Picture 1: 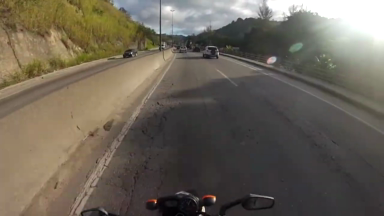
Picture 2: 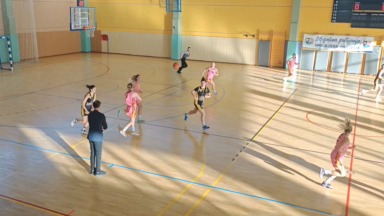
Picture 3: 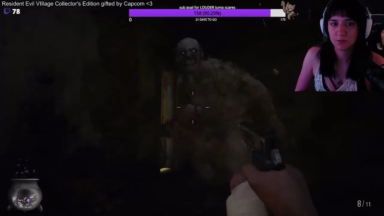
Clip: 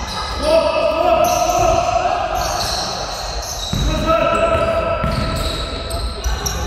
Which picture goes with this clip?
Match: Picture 2